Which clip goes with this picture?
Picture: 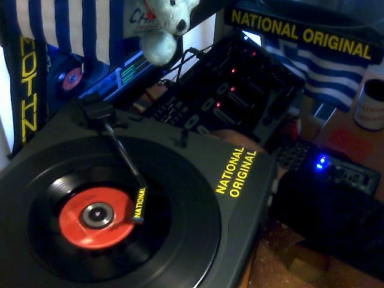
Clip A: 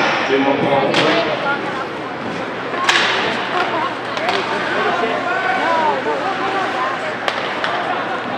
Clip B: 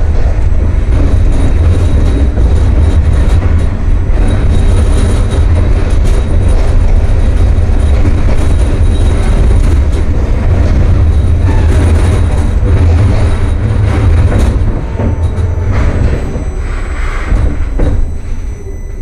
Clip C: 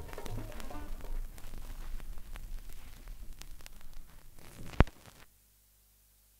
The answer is C